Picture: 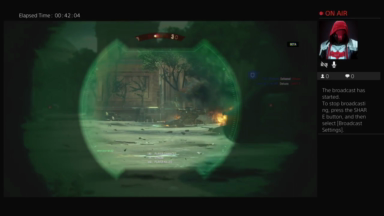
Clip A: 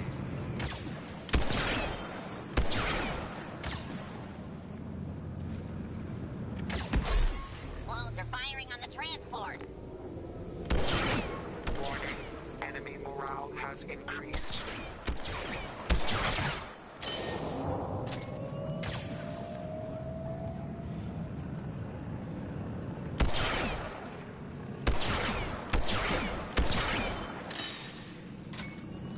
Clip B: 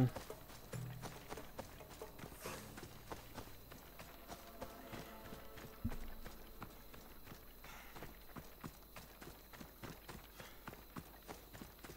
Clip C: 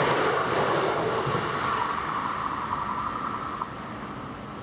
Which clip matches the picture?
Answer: A